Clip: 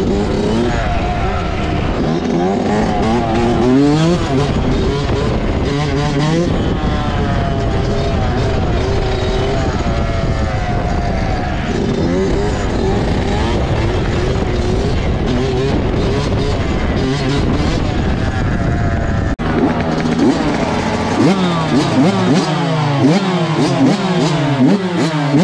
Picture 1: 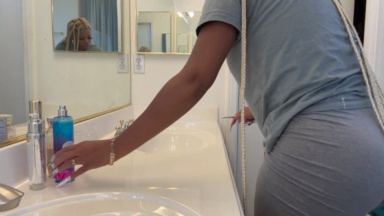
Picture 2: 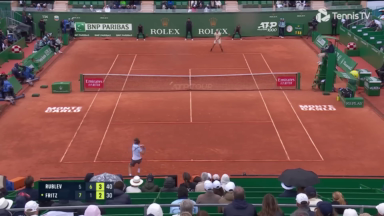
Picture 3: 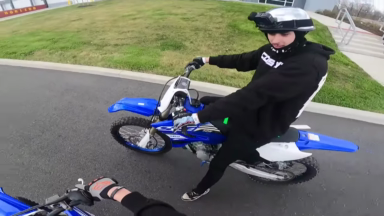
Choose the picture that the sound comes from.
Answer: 3